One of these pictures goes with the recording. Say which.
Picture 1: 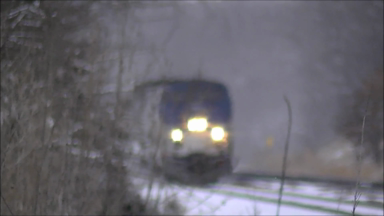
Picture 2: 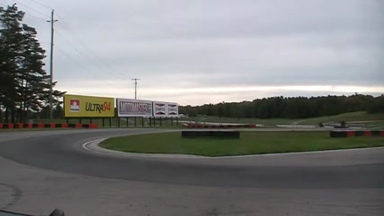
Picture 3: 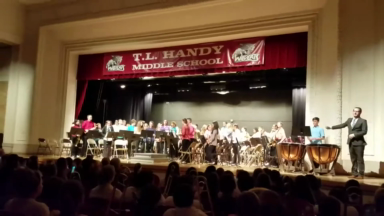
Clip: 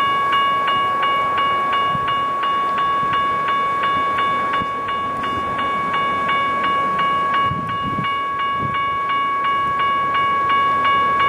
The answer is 1